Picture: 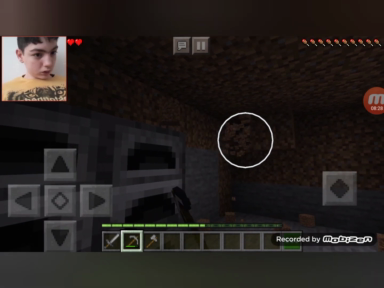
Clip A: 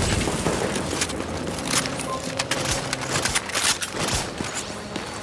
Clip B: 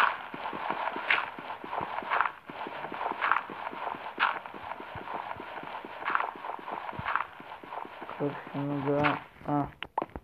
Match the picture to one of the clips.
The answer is B